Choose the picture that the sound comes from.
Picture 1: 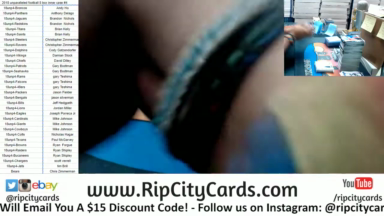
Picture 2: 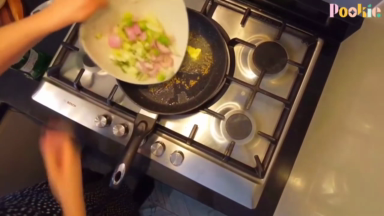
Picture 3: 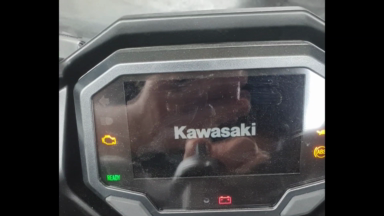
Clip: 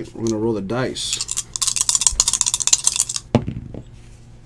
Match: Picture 1